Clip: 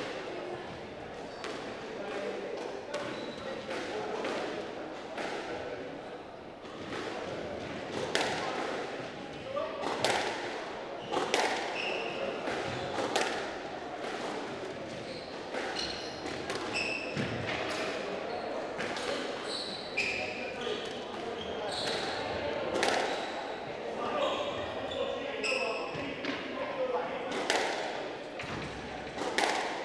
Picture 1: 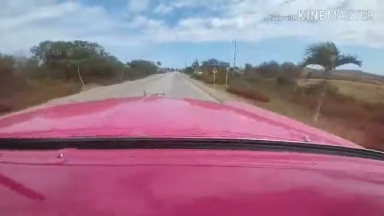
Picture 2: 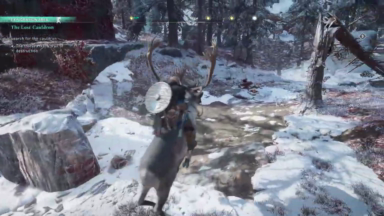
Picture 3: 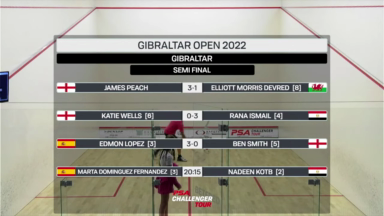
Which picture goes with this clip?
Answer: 3